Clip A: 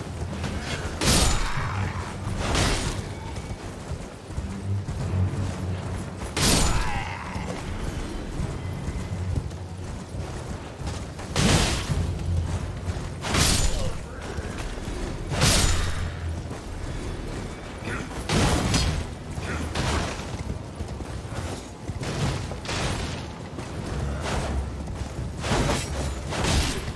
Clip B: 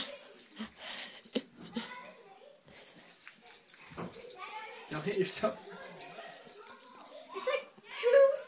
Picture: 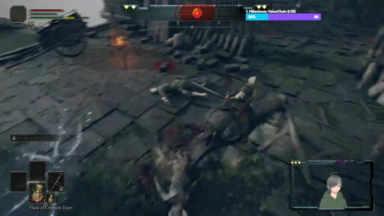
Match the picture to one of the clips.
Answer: A